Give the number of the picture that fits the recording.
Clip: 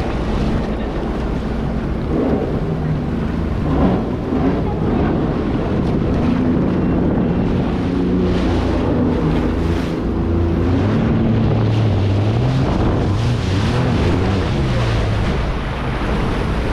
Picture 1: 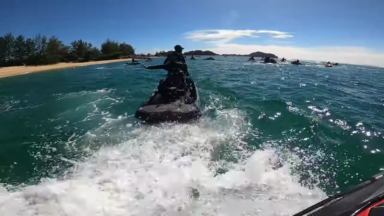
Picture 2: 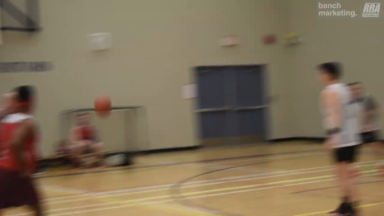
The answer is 1